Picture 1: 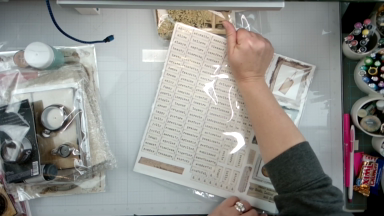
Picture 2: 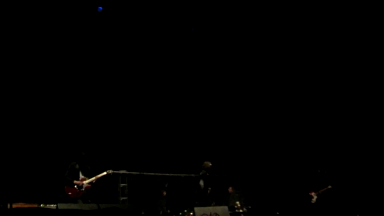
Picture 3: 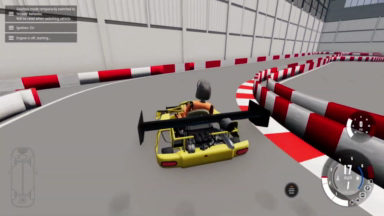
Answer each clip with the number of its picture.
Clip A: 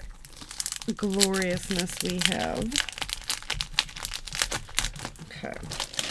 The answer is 1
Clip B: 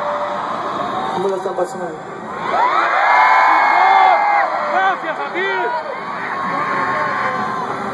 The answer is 2